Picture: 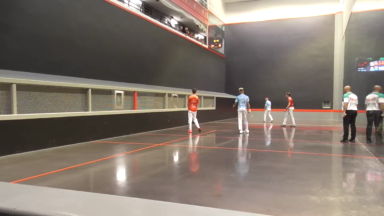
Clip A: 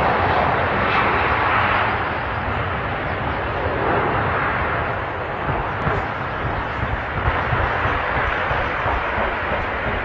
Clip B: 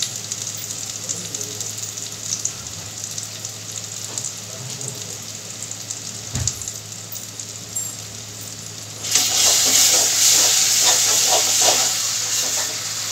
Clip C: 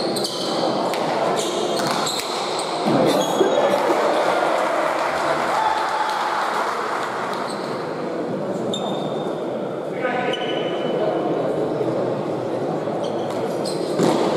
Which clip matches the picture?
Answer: C